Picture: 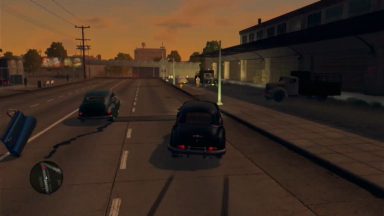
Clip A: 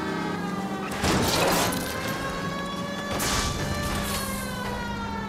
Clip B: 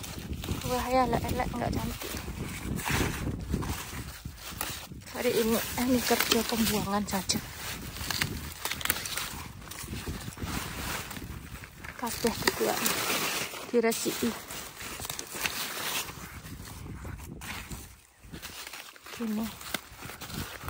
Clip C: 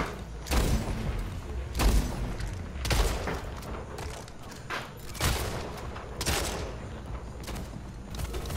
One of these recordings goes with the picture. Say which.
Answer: A